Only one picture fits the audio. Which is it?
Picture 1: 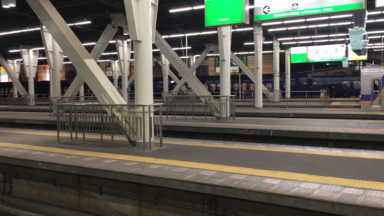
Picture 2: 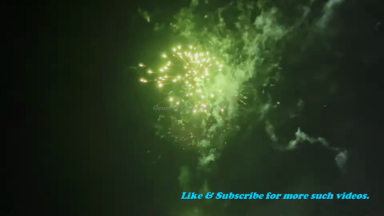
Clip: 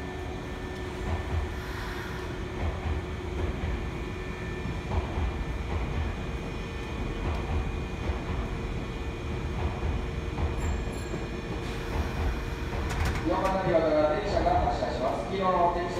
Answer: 1